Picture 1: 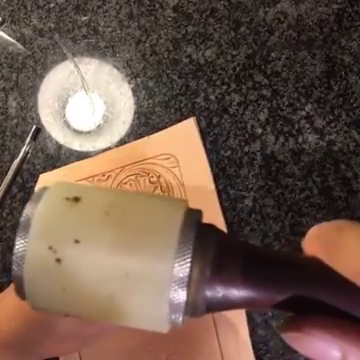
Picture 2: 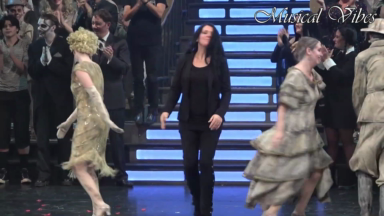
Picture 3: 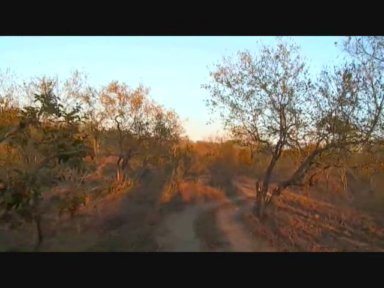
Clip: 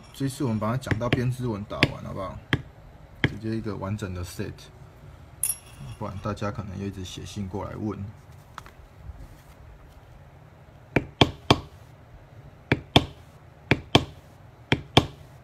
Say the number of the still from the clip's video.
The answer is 1